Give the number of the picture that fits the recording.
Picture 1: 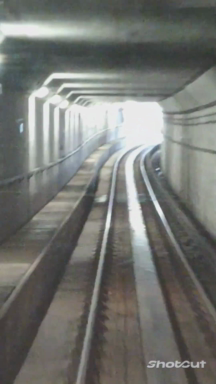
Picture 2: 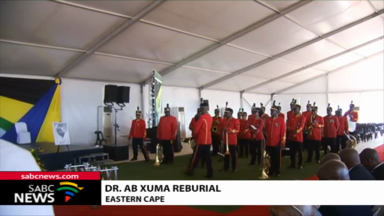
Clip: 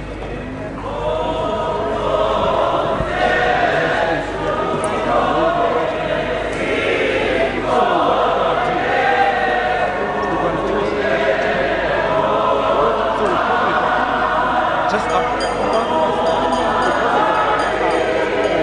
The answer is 2